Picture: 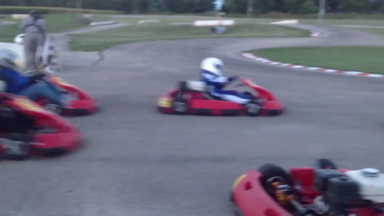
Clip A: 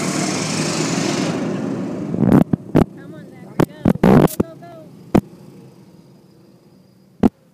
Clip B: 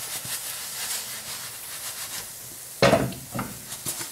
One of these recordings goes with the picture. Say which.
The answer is A